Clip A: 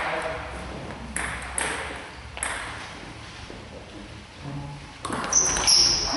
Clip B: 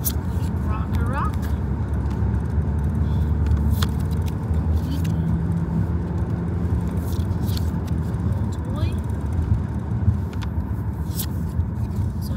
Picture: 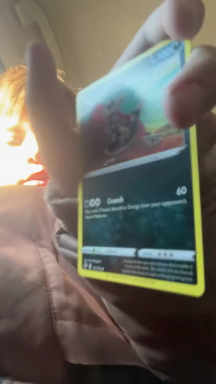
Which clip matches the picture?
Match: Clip B